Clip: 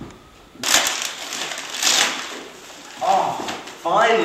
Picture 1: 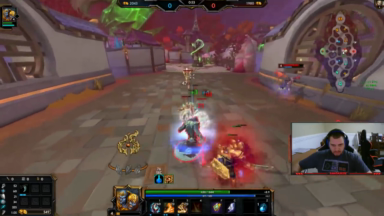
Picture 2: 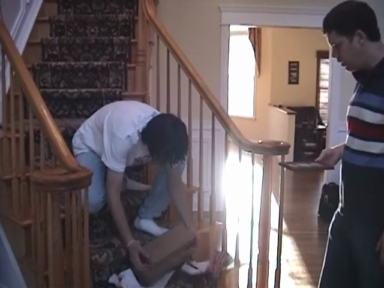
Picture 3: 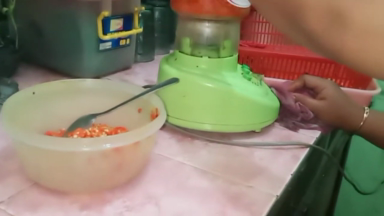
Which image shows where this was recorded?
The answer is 2